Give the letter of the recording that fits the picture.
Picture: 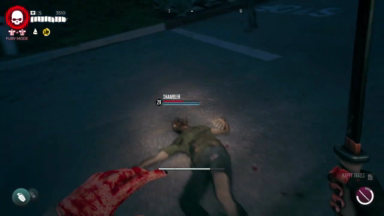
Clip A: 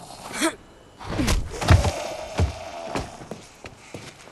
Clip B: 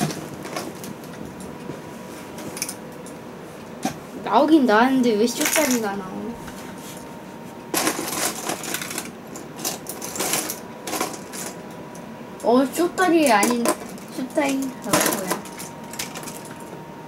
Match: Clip A